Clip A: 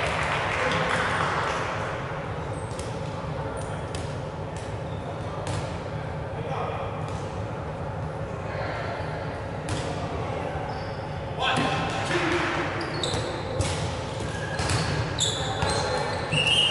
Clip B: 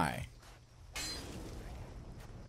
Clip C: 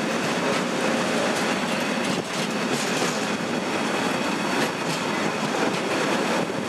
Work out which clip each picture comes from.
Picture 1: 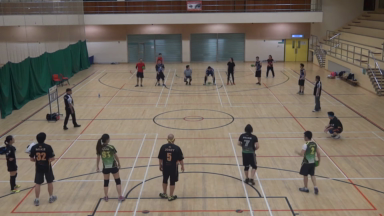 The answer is A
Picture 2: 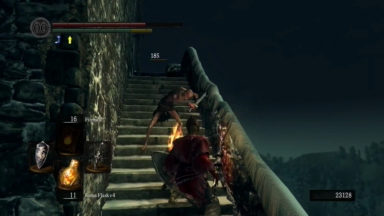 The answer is B